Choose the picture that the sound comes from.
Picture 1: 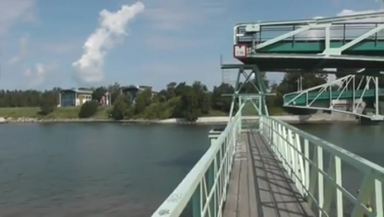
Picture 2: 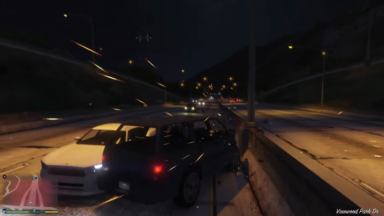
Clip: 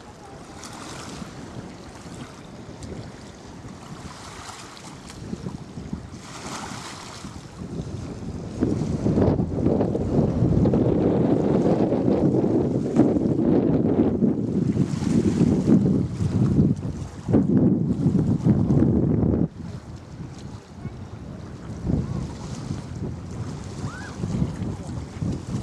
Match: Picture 1